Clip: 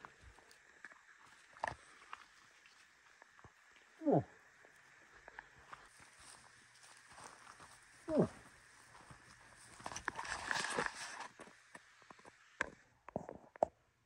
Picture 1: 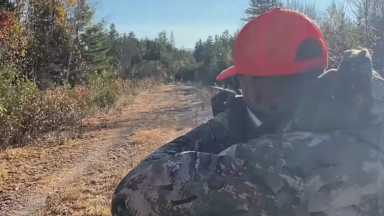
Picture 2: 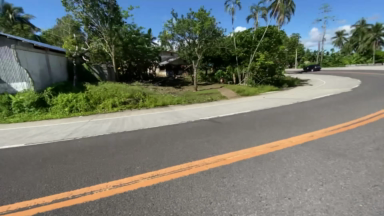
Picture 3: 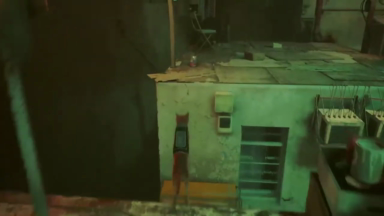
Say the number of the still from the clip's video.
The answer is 1